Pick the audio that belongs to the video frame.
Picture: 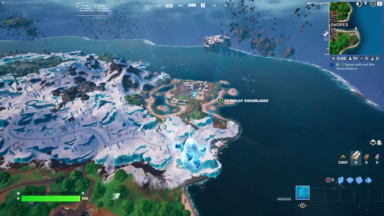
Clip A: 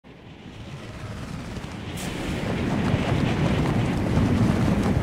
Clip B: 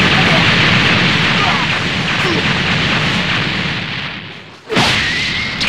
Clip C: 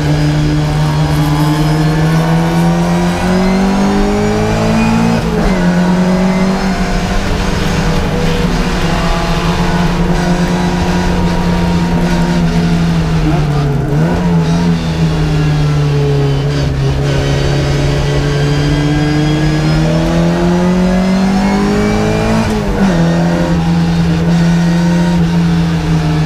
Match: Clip A